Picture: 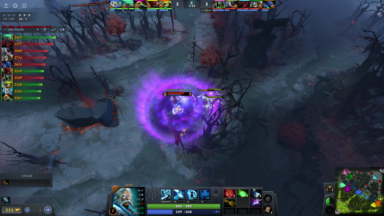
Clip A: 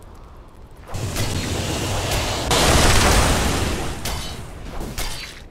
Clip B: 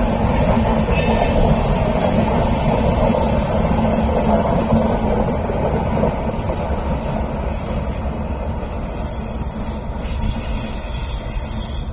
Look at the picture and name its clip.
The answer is A